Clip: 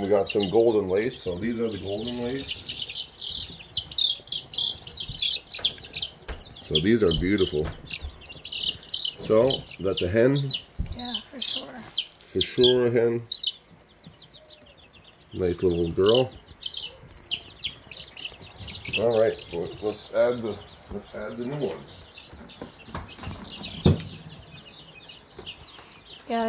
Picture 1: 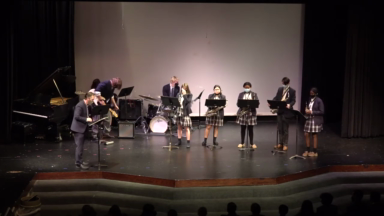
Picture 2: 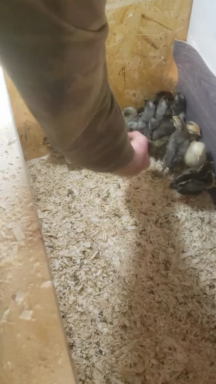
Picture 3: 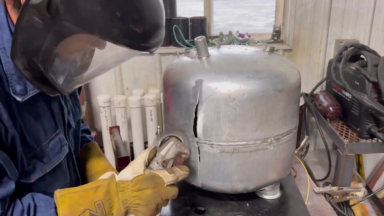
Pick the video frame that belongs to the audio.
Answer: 2